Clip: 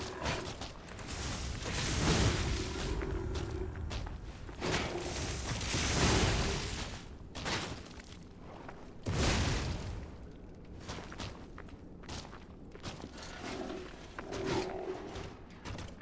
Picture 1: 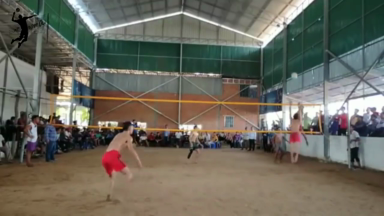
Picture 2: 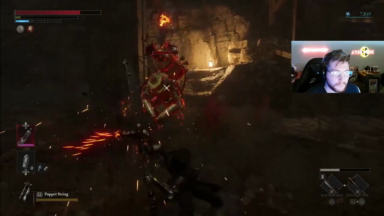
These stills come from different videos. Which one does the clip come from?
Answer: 2